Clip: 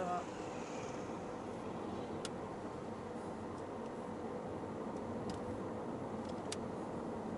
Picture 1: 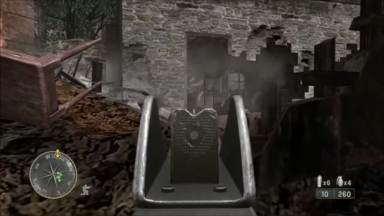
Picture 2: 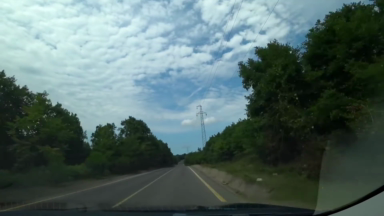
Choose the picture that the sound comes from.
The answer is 2